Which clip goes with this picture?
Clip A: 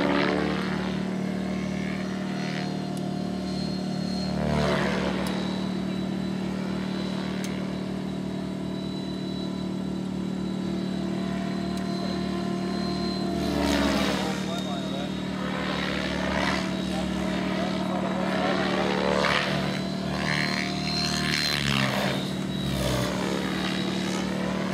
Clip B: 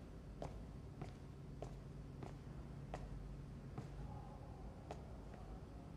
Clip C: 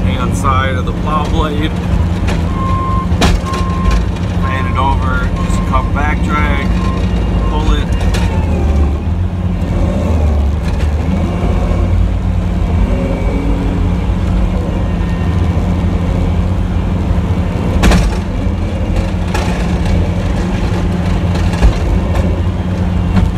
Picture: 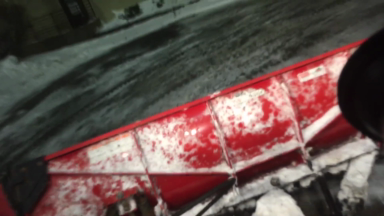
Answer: C